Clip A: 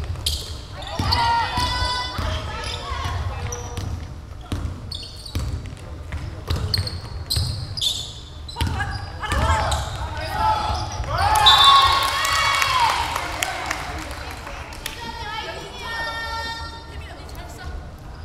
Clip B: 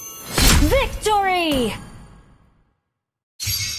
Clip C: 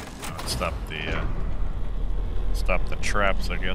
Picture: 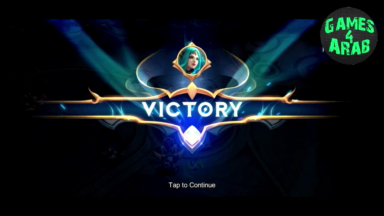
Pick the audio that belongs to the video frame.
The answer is B